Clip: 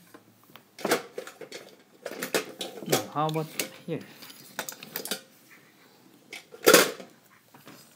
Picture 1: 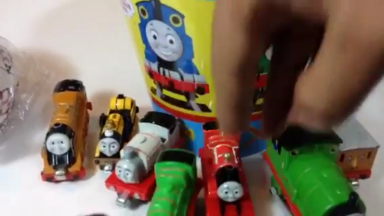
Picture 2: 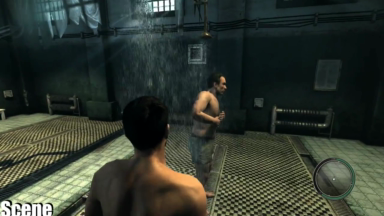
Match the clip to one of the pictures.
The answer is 1